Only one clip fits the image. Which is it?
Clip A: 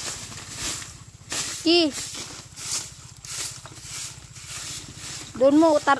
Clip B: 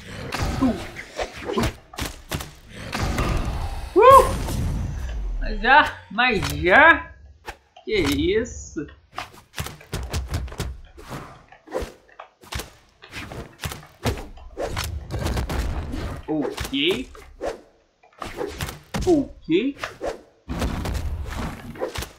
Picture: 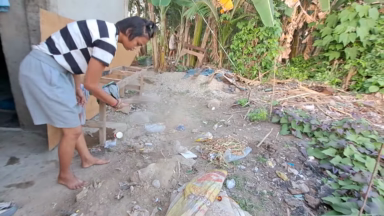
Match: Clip A